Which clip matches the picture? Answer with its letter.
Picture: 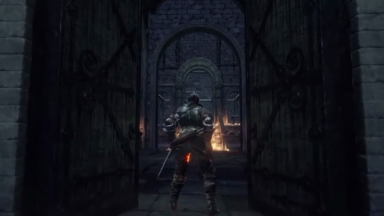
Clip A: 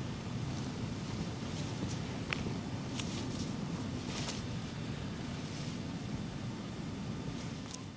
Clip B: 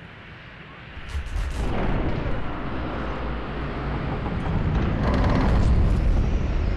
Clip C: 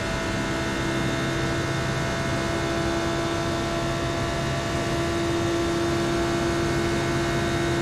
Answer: B